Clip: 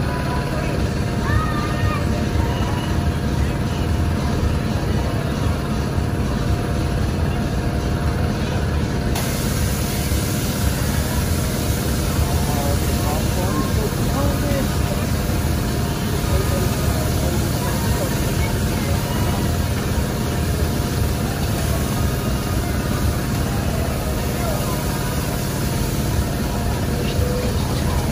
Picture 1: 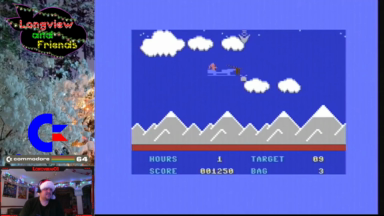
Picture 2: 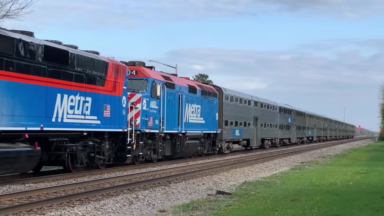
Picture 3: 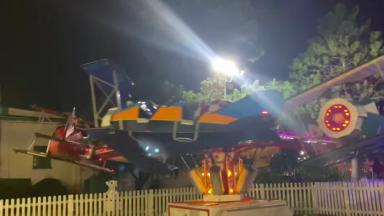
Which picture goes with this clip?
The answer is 3